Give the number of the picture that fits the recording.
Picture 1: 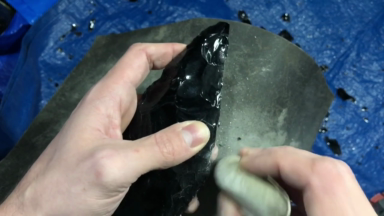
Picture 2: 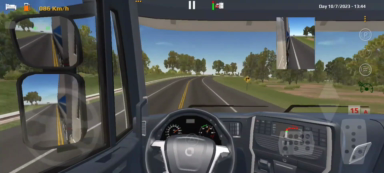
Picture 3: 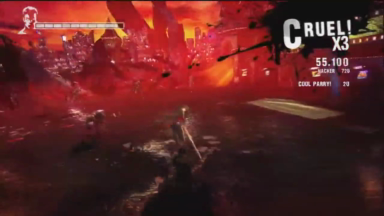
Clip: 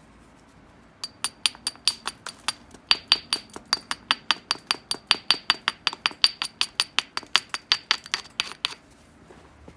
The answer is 1